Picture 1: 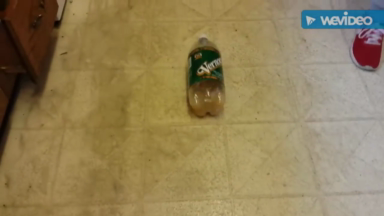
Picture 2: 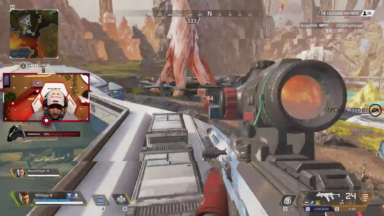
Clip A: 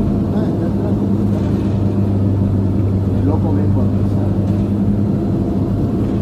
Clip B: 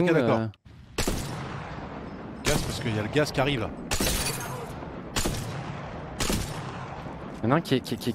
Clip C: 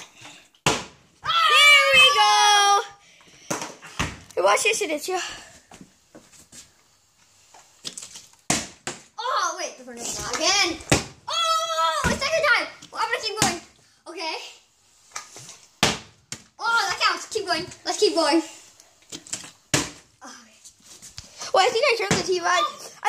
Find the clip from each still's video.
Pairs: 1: C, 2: B